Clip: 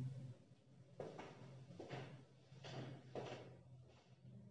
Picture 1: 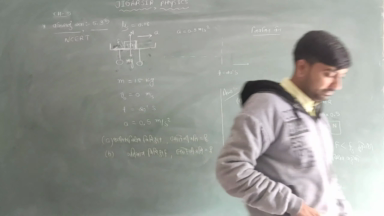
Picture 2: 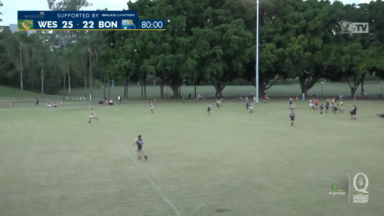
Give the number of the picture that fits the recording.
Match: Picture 1